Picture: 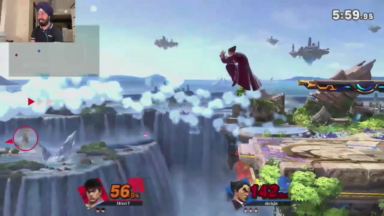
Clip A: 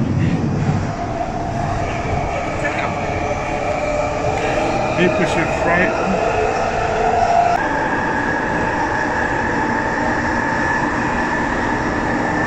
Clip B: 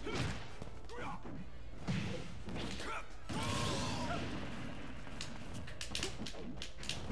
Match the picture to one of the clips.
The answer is B